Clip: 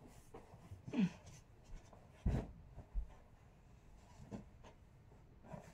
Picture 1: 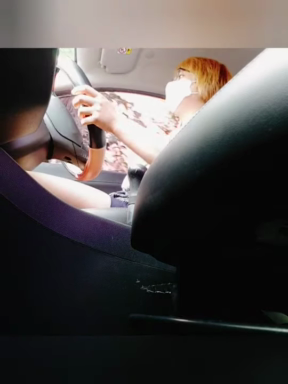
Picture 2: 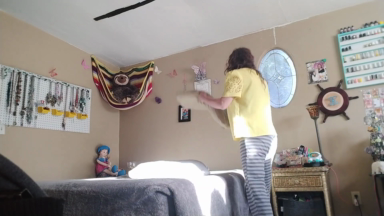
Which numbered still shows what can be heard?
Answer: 2